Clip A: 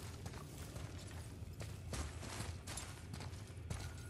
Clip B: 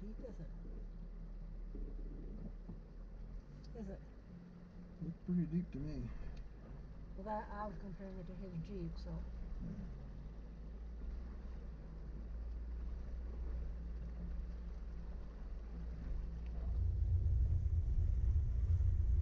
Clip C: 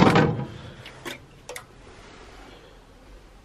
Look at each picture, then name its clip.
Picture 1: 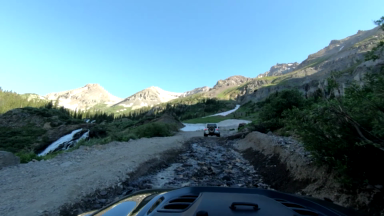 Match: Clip B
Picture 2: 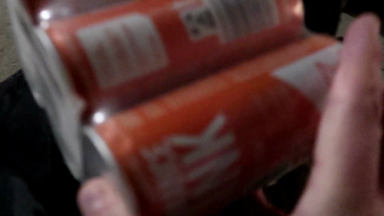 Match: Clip C